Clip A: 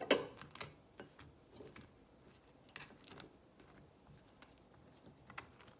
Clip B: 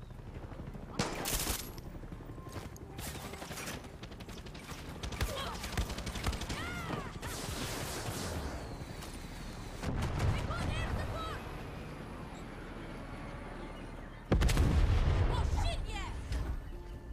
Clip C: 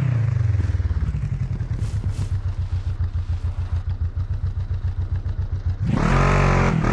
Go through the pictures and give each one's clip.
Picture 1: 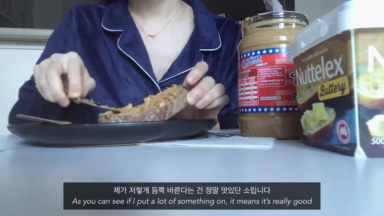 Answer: A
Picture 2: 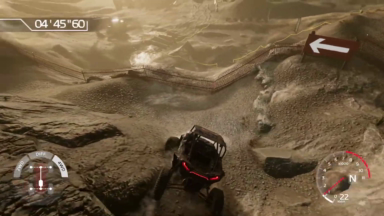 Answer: C